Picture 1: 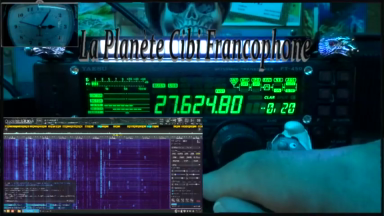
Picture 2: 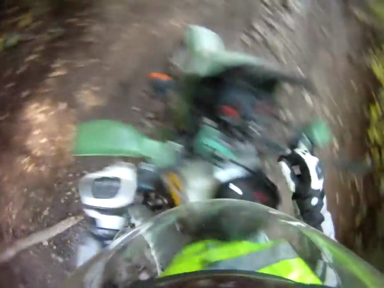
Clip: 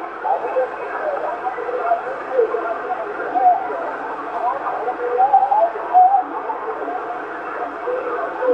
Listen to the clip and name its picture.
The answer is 1